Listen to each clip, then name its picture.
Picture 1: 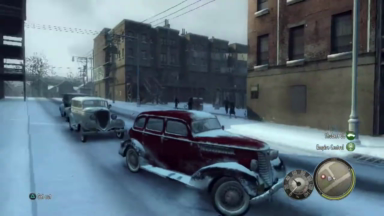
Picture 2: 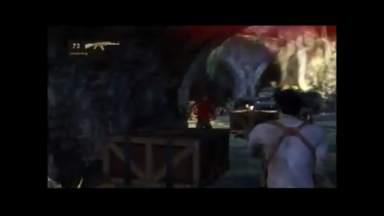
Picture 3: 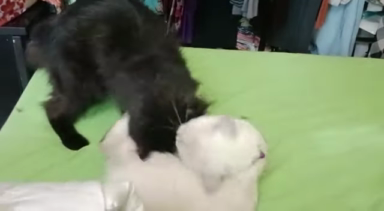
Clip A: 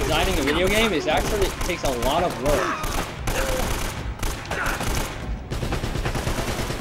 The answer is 2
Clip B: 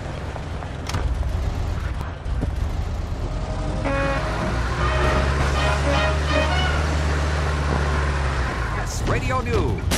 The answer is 1